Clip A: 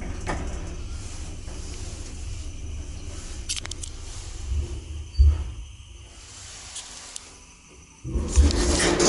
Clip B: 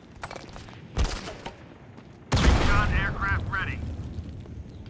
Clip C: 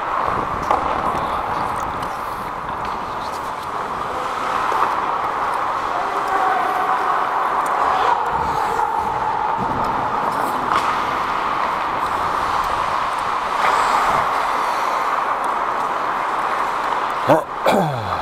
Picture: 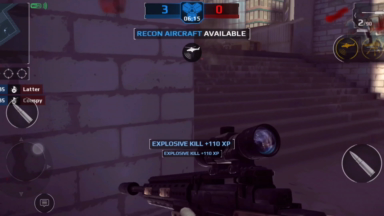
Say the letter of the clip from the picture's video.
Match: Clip B